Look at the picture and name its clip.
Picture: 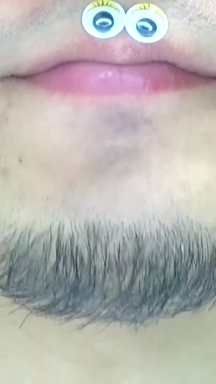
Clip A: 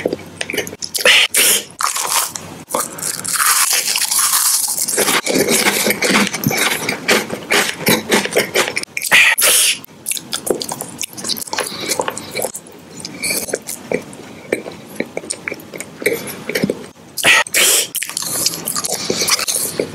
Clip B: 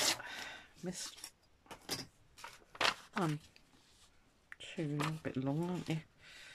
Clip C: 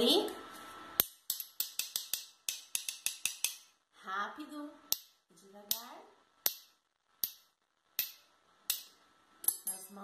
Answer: A